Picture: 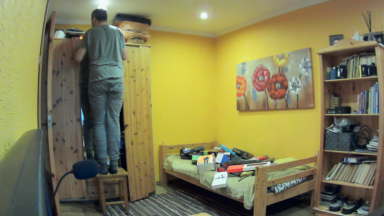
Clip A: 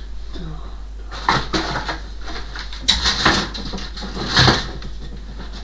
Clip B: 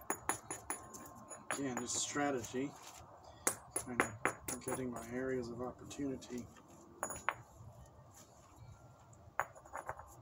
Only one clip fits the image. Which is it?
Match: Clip A